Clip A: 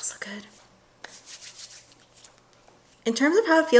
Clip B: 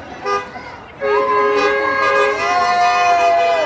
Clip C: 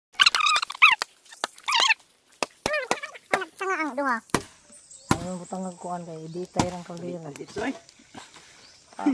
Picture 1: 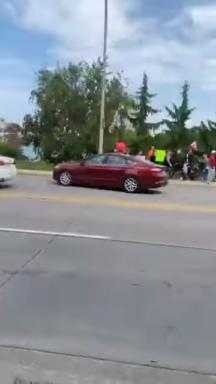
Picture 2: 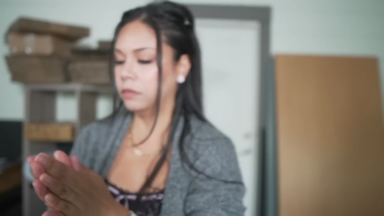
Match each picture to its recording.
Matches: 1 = B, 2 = A